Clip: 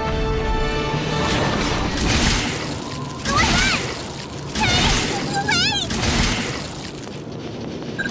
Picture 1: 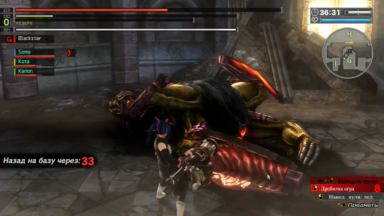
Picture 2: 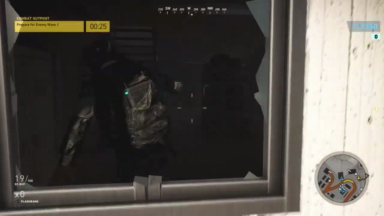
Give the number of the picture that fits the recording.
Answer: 1